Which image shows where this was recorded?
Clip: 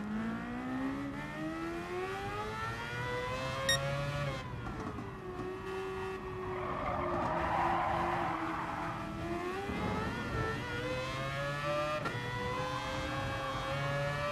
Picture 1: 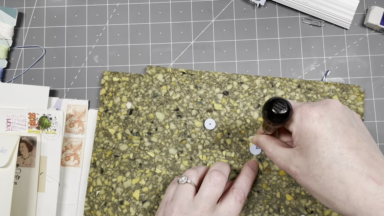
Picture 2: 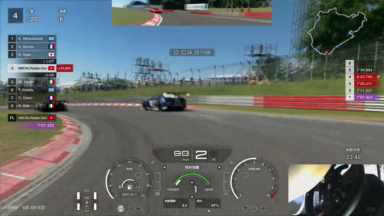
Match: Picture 2